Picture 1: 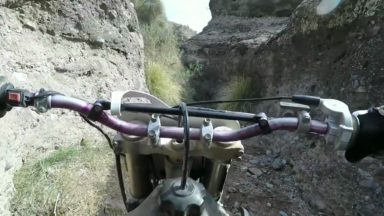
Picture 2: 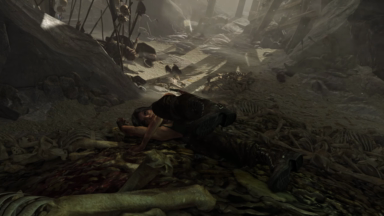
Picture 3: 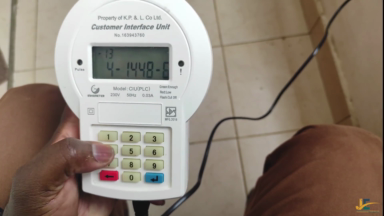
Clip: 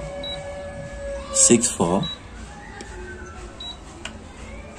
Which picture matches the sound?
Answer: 3